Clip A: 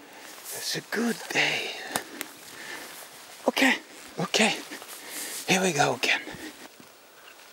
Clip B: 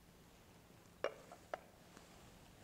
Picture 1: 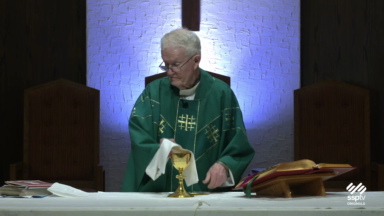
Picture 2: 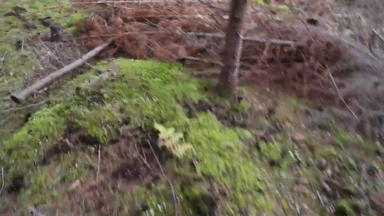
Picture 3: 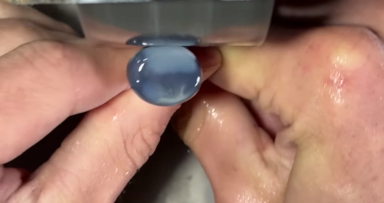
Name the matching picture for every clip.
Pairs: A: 2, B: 1